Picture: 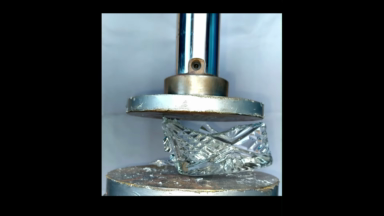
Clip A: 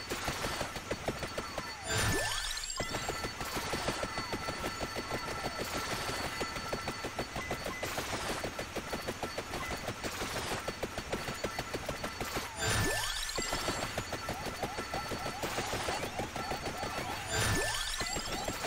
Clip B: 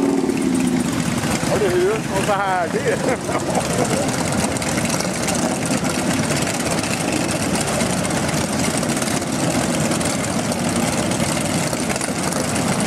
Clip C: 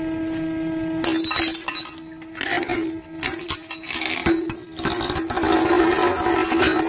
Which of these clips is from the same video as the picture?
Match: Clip C